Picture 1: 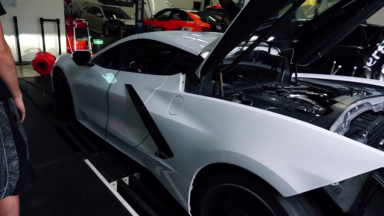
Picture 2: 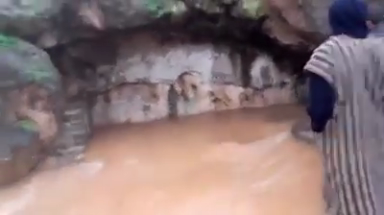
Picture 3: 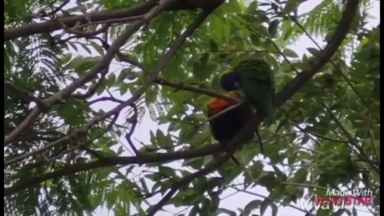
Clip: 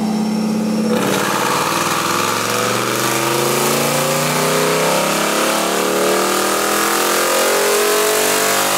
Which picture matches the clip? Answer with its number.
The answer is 1